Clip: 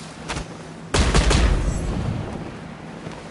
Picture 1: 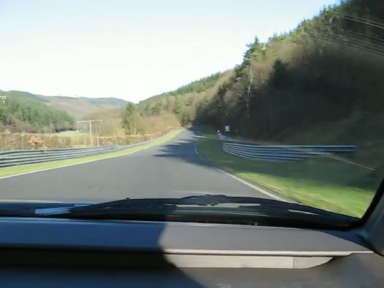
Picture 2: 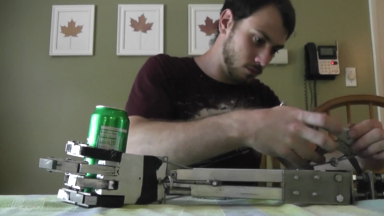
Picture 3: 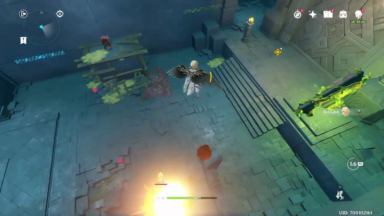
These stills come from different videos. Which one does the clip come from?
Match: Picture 3